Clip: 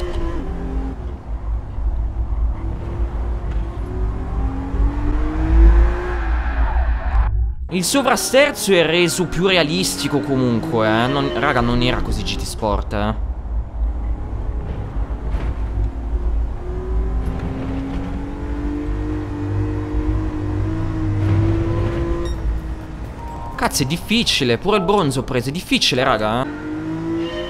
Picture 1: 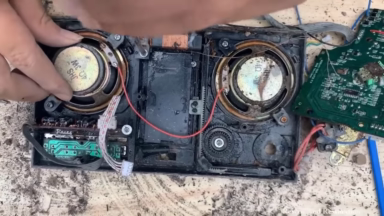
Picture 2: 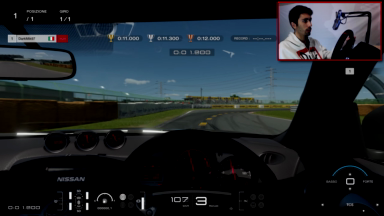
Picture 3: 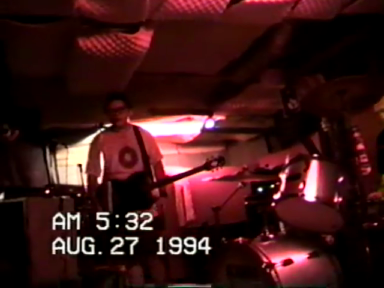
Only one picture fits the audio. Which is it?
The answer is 2